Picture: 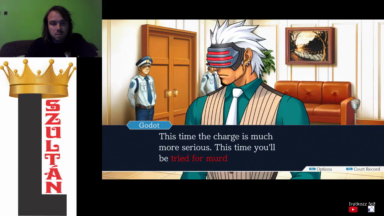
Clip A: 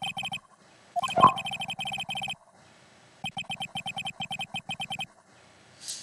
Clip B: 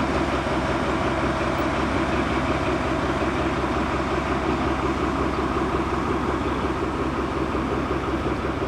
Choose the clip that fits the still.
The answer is A